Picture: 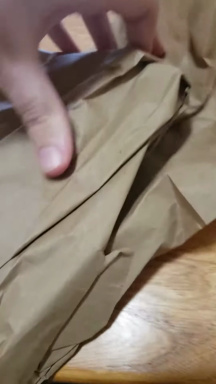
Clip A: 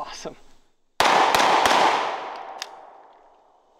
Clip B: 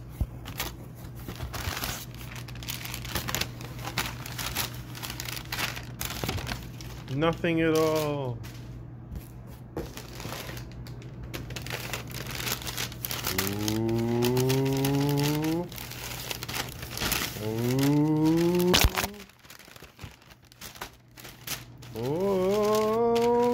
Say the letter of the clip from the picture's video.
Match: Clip B